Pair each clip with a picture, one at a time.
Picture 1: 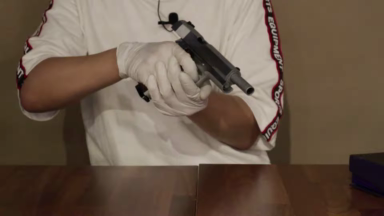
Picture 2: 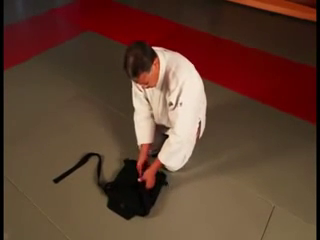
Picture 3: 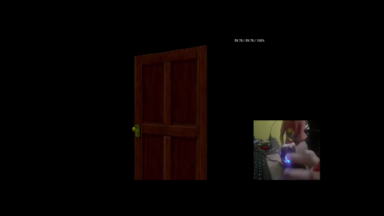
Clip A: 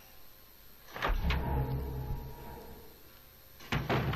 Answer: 3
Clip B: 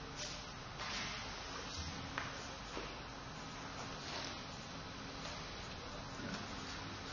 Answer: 2